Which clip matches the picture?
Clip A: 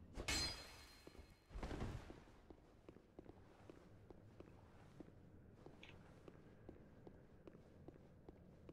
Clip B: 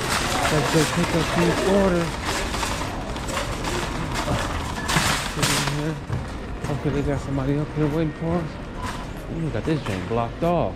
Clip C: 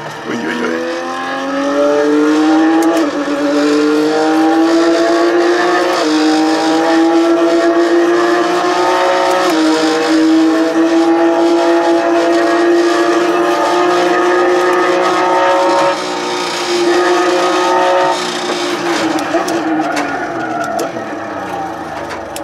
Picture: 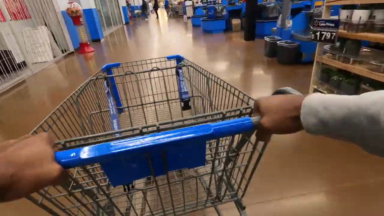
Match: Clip B